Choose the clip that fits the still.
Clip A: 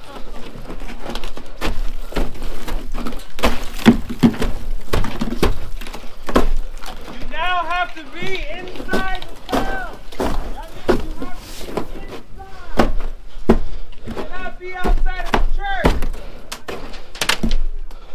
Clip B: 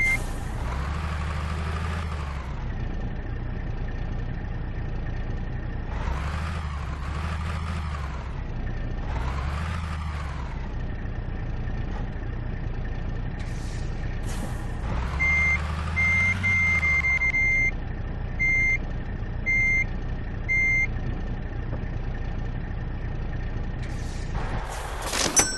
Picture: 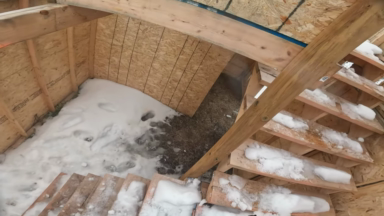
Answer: A